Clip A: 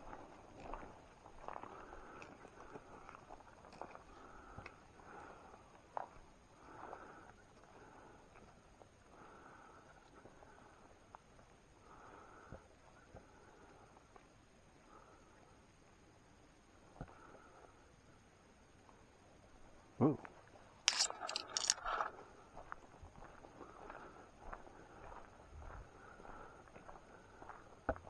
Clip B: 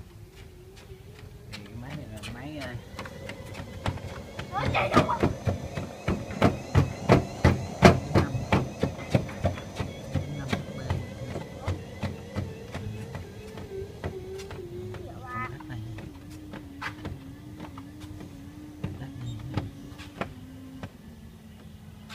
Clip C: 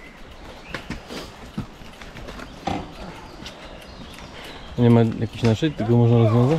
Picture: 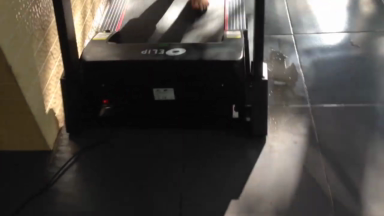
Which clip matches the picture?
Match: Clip B